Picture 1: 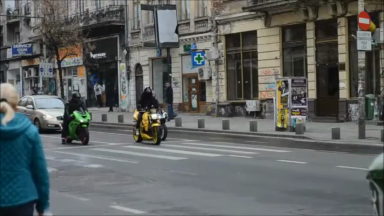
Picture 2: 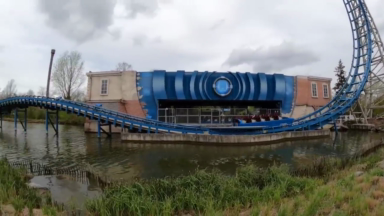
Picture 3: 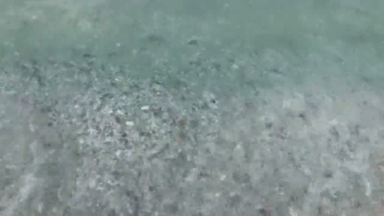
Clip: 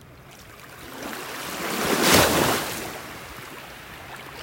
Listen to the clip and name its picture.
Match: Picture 3